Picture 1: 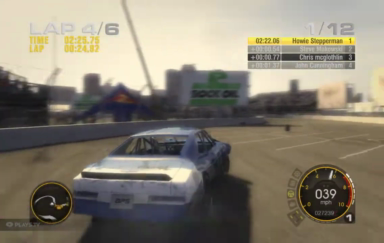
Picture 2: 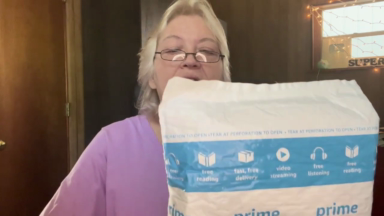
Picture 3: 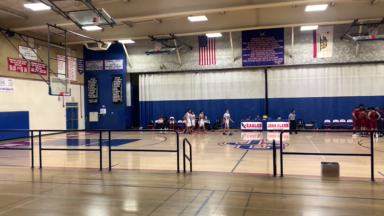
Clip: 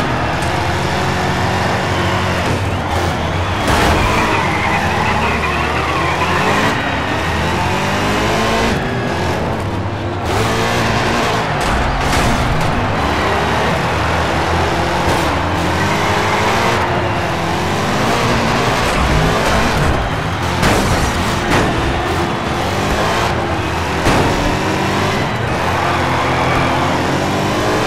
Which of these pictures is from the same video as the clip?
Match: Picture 1